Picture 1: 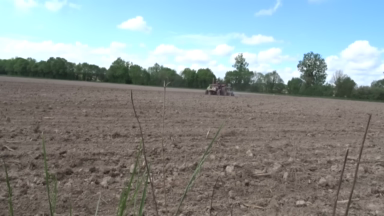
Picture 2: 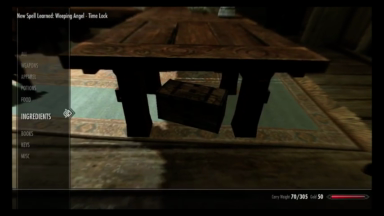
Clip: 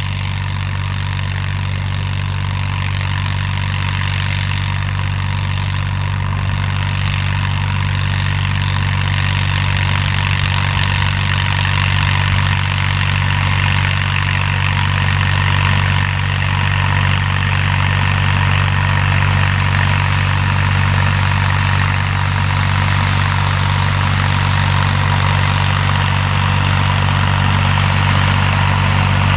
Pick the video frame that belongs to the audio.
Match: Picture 1